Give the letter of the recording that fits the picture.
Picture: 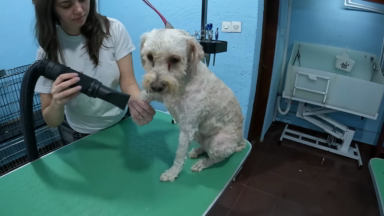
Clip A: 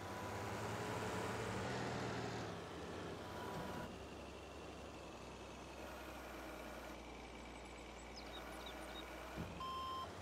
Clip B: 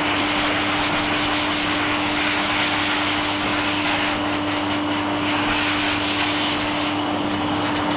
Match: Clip B